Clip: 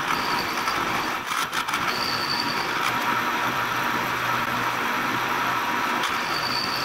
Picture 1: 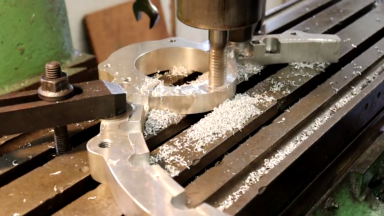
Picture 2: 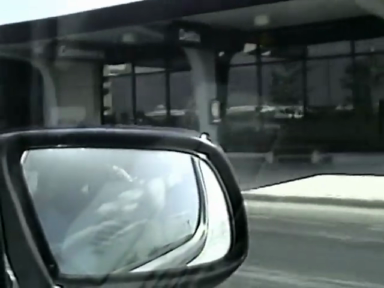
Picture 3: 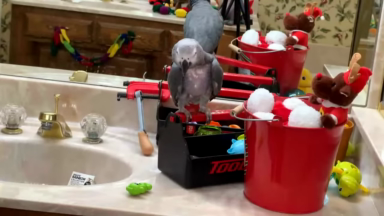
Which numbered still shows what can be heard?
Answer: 1